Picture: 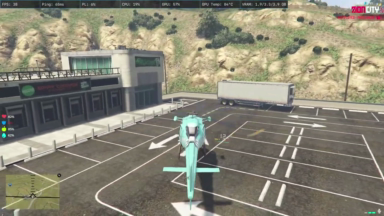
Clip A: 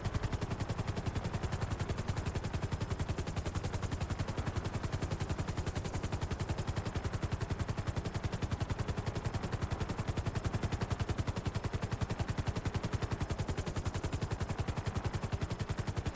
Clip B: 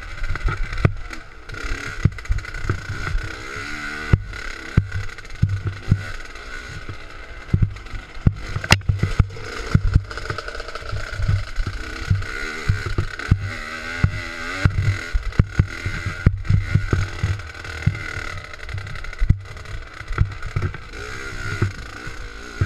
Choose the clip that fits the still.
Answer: A